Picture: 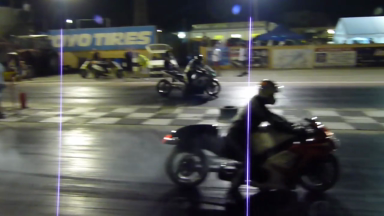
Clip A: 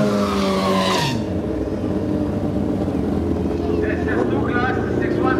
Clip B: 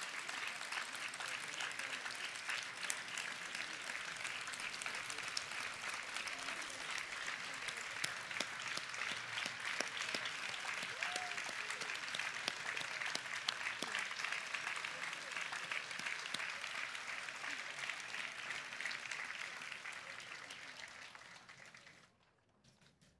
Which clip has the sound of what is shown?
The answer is A